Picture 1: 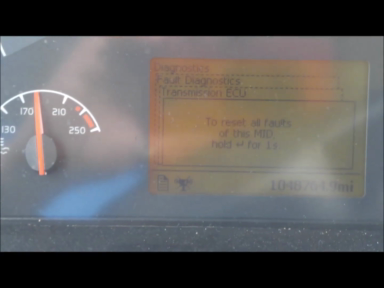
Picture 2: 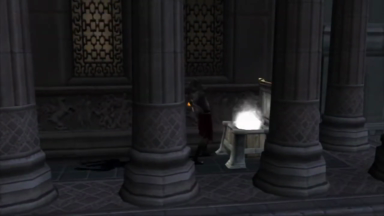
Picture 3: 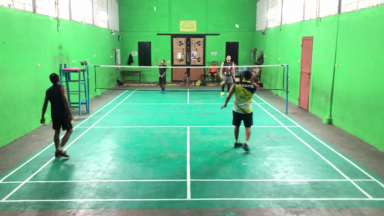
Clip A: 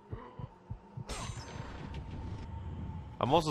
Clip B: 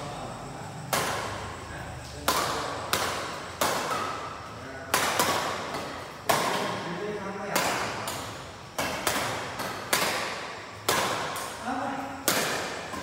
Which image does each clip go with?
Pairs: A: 2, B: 3